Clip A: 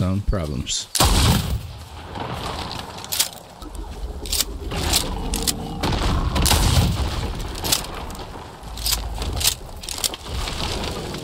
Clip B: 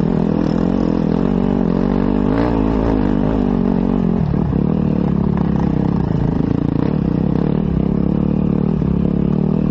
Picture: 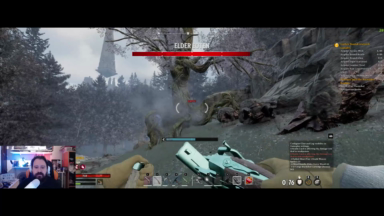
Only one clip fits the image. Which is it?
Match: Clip A